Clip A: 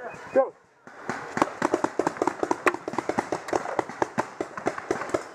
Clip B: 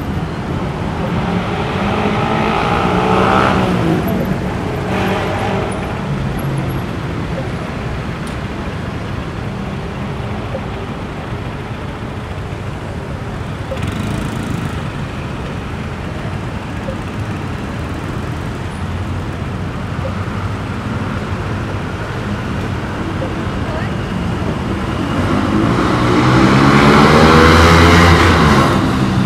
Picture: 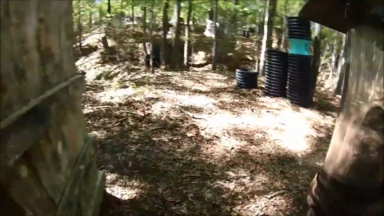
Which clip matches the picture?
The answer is A